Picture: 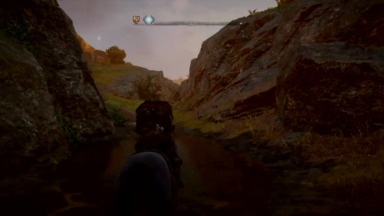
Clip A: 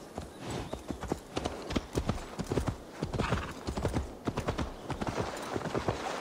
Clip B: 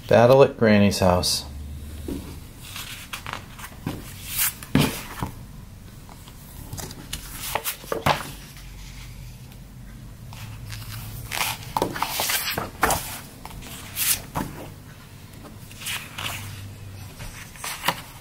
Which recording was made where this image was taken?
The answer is A